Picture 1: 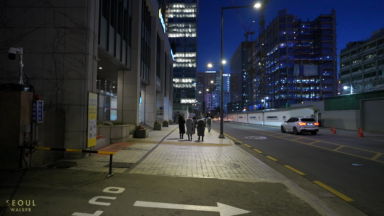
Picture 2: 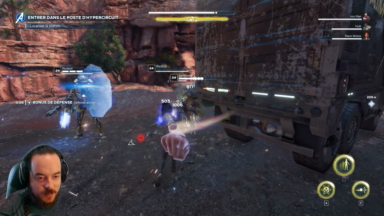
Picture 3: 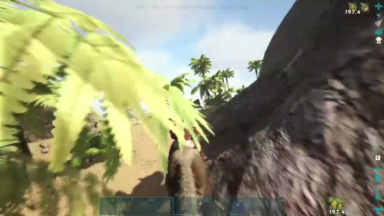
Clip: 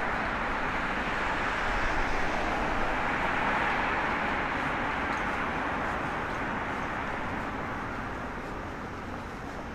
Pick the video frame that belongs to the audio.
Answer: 1